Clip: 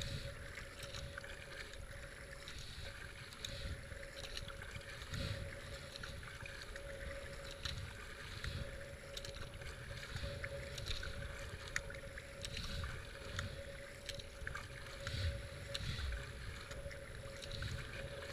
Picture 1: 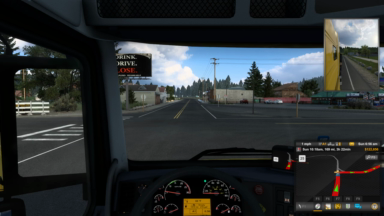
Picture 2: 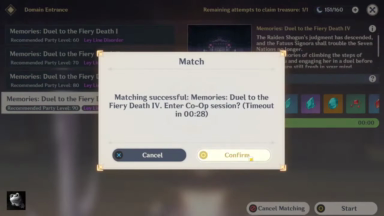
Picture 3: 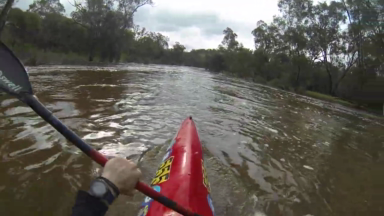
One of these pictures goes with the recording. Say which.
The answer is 3